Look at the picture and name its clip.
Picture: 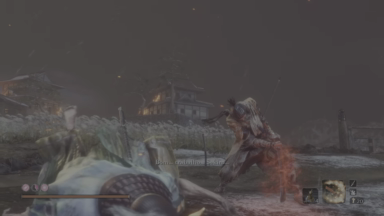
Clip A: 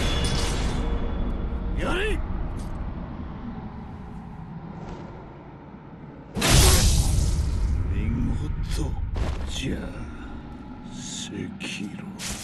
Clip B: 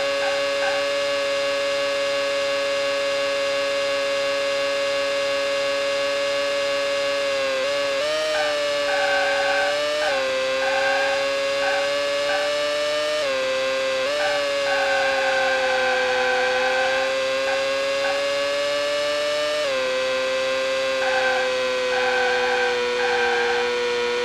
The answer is A